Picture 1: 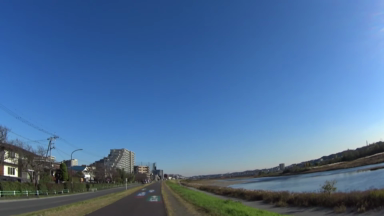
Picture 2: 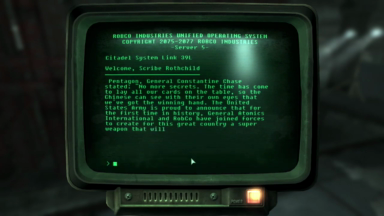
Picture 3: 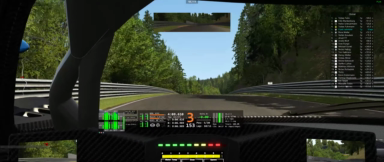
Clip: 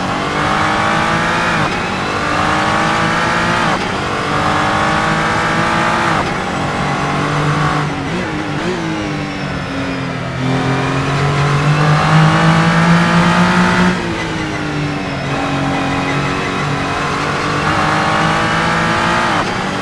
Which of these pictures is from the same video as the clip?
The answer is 3